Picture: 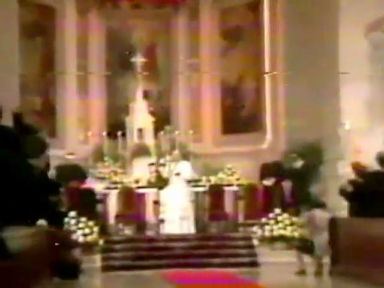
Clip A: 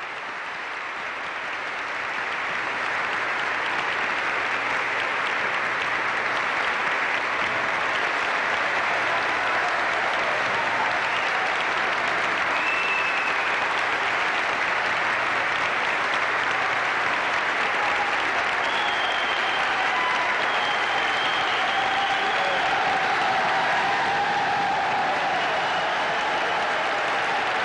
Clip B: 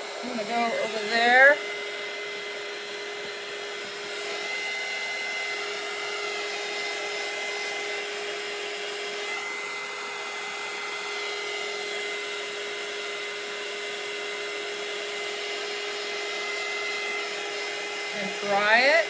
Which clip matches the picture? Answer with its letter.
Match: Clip A